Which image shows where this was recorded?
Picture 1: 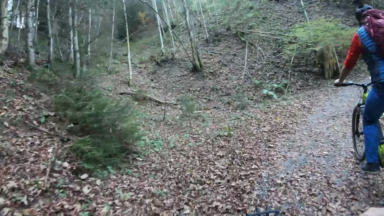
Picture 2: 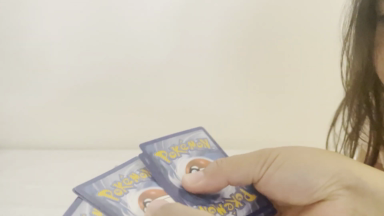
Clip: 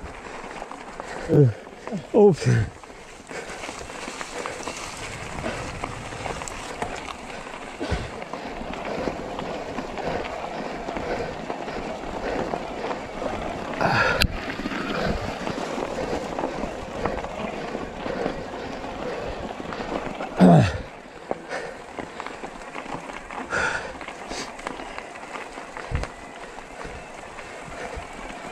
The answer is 1